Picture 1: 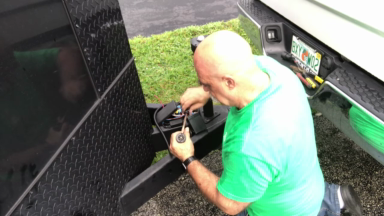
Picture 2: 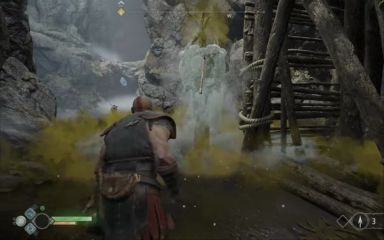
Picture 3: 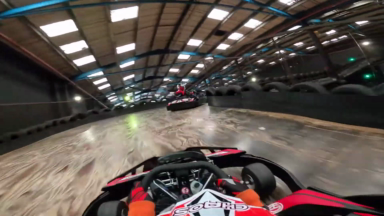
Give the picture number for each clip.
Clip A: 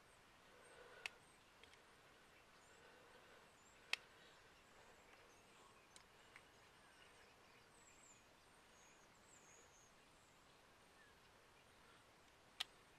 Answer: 1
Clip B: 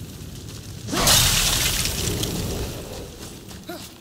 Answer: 2